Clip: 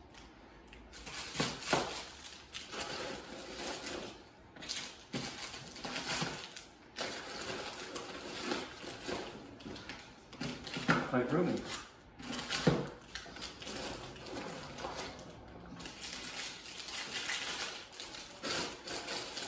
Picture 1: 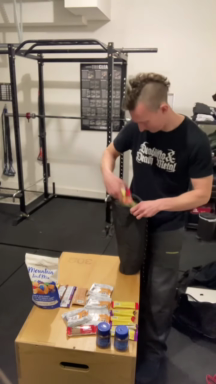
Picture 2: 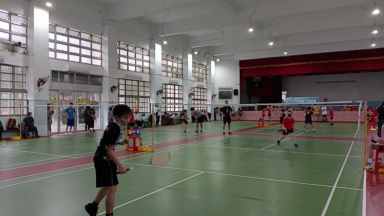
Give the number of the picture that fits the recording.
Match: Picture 1